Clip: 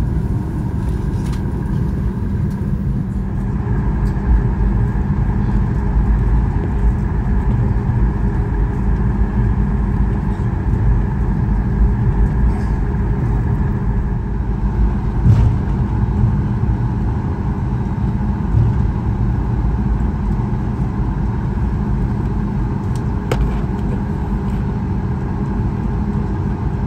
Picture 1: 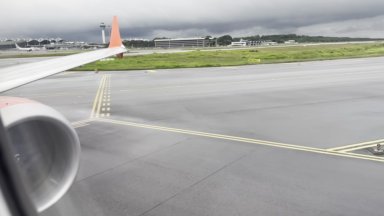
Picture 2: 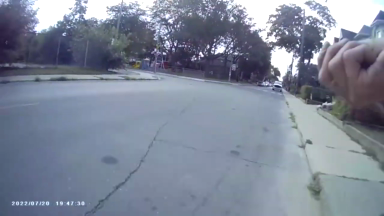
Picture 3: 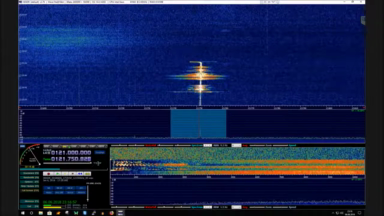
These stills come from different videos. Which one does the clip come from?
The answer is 1